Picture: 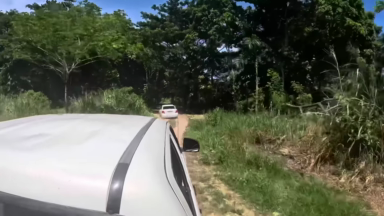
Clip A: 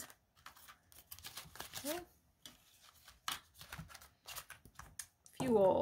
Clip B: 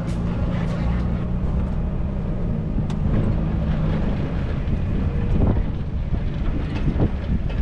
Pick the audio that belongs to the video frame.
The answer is B